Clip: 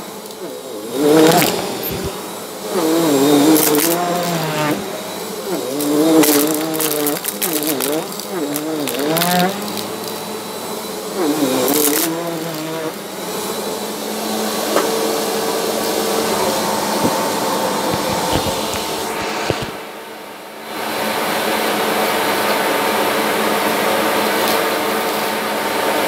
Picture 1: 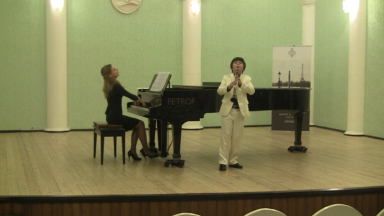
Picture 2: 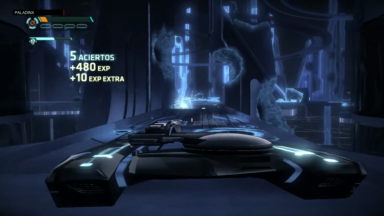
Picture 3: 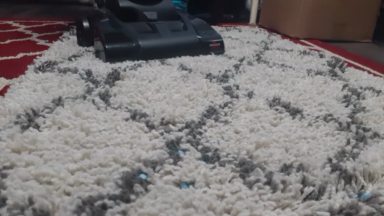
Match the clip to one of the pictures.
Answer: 3